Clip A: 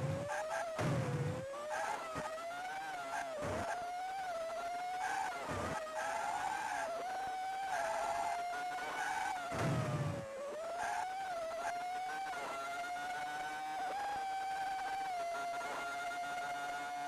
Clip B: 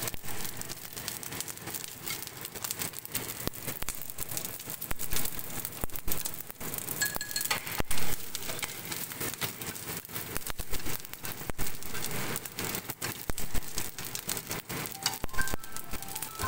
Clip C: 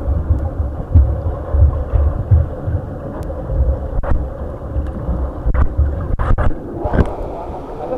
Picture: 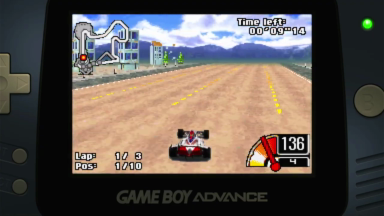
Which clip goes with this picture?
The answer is A